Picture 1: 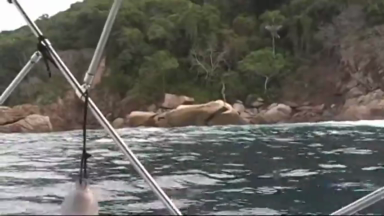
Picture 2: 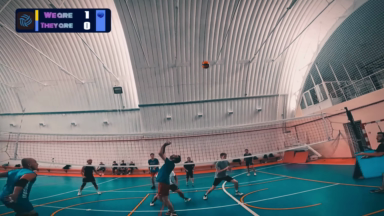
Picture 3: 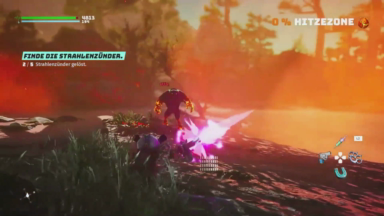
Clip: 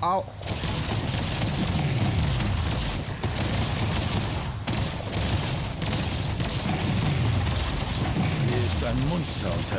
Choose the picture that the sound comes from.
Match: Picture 3